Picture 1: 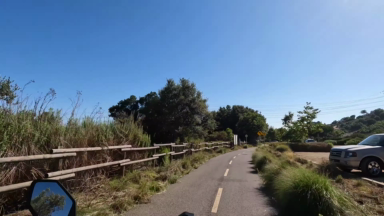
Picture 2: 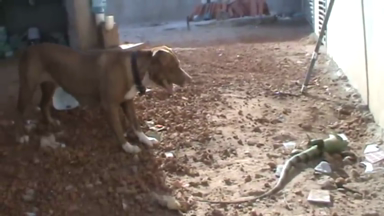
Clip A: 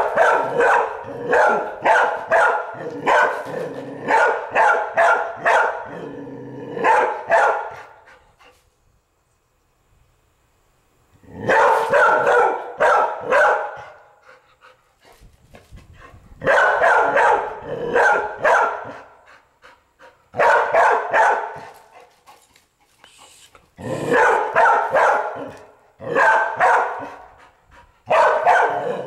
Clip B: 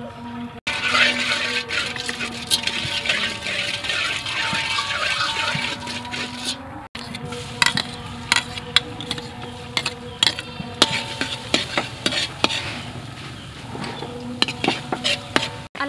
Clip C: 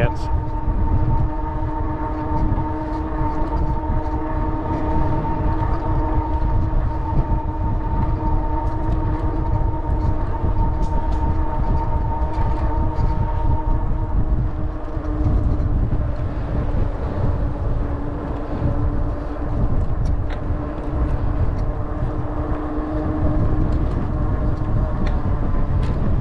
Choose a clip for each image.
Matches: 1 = C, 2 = A